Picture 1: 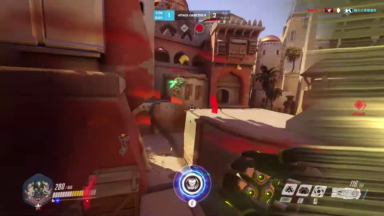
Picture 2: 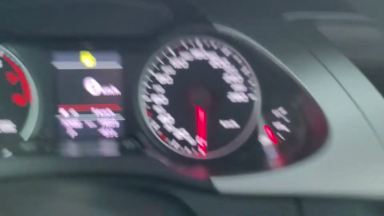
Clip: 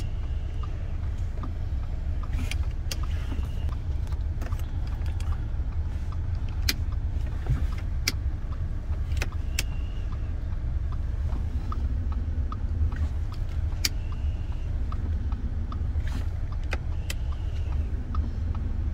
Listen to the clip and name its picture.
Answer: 2